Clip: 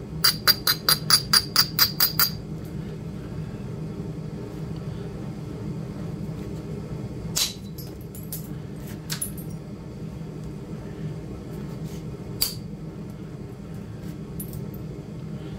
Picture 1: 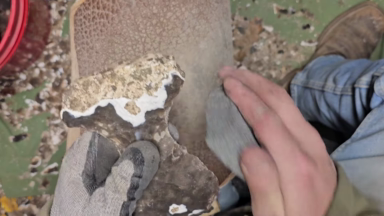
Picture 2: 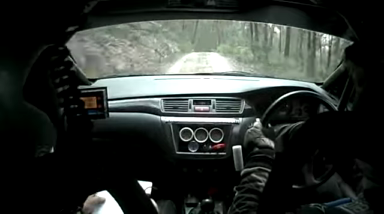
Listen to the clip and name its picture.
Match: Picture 1